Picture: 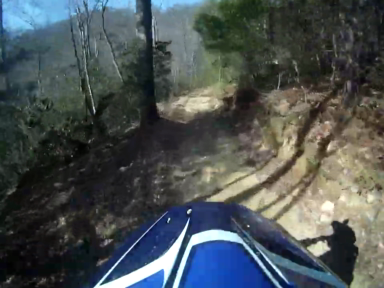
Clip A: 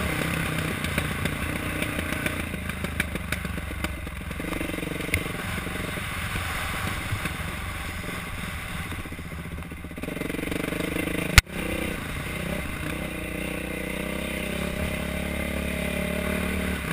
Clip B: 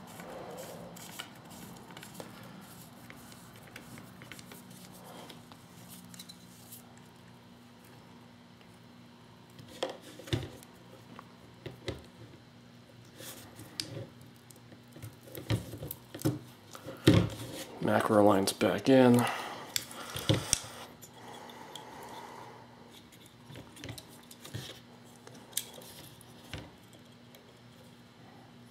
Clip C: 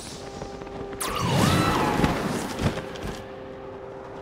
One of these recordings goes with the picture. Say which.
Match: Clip A